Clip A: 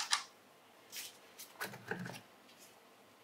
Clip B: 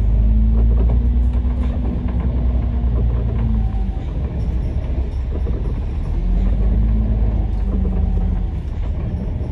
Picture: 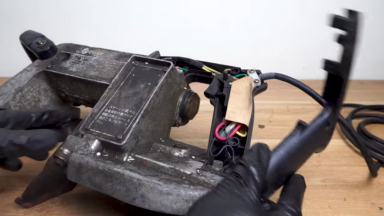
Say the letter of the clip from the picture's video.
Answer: A